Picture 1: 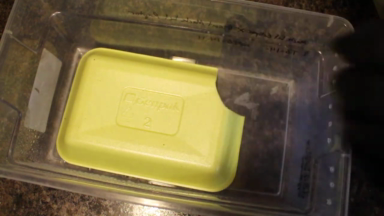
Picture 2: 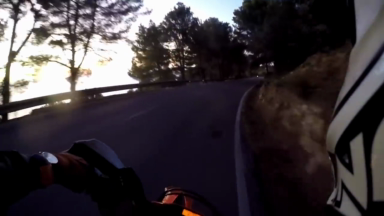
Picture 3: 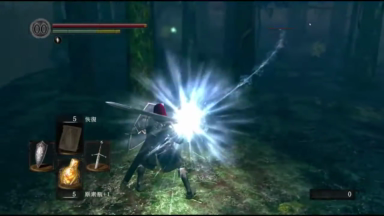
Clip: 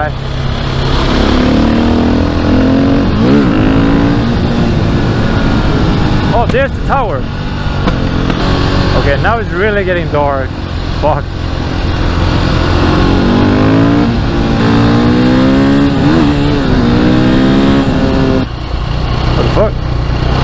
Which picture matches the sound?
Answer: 2